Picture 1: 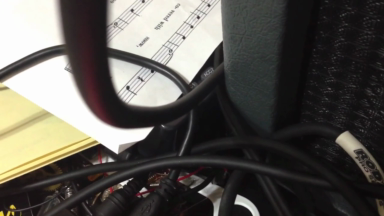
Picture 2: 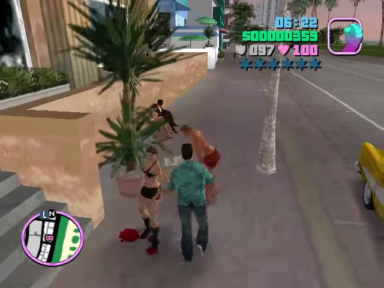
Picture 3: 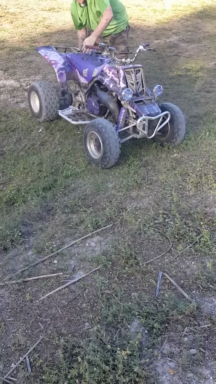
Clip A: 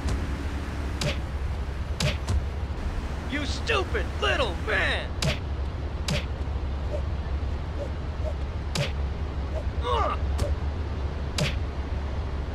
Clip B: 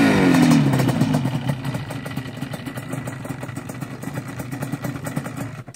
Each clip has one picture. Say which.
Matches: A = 2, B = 3